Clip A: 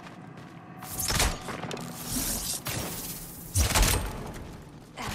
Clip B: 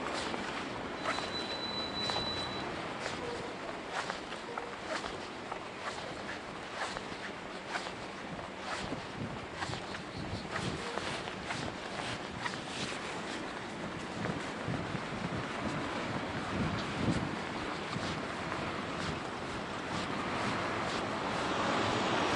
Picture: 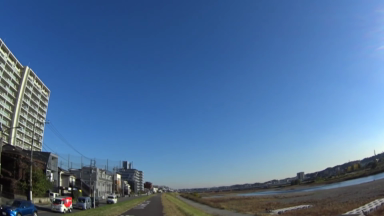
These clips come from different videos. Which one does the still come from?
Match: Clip B